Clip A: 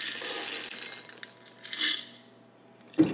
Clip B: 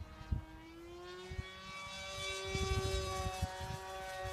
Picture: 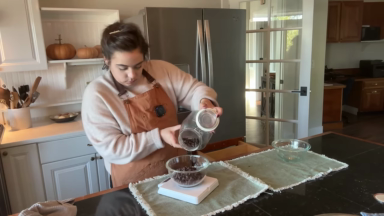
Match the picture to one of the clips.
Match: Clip A